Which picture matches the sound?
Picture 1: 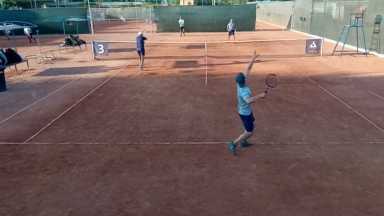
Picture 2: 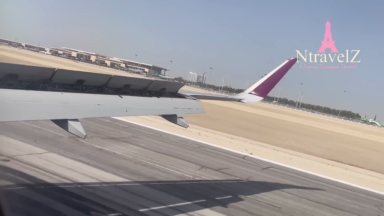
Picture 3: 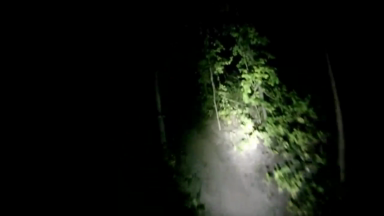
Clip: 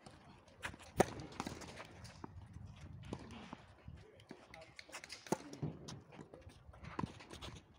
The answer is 1